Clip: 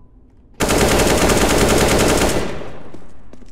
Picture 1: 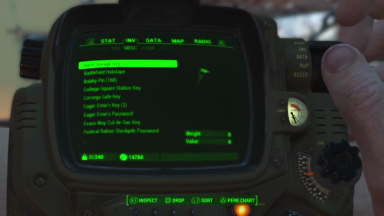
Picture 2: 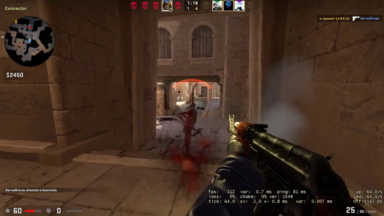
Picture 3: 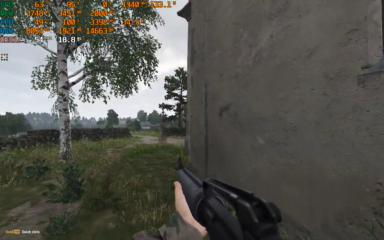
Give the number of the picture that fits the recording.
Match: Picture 2